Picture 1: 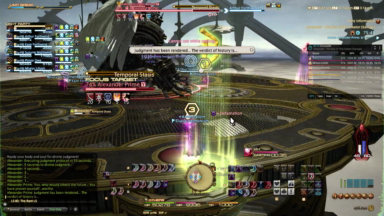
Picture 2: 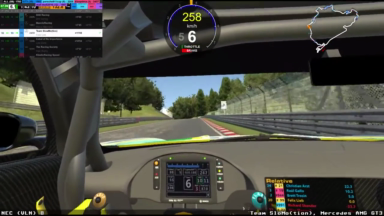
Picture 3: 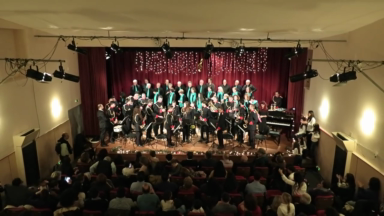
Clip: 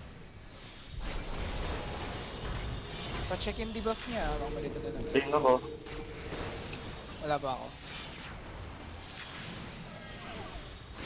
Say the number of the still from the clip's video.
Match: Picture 1